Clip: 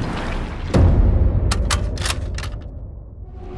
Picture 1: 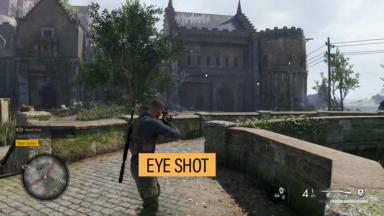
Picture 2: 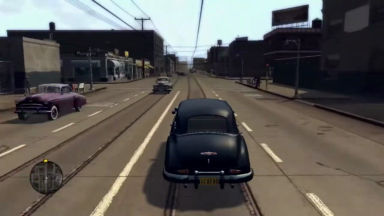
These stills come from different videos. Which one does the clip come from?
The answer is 1